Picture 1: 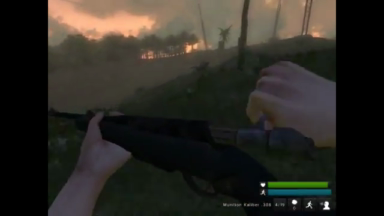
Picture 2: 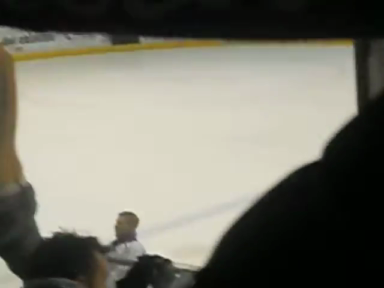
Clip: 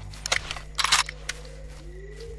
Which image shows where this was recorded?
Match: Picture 1